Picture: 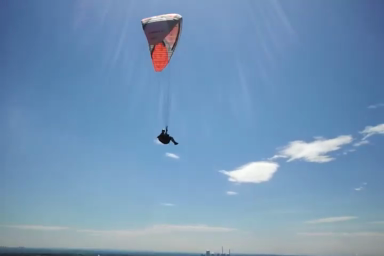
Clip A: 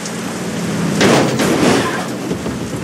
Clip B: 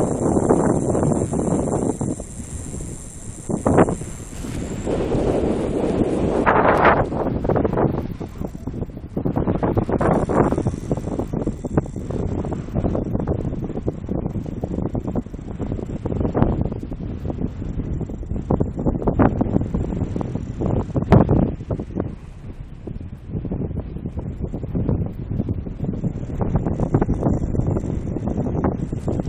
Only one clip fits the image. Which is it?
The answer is B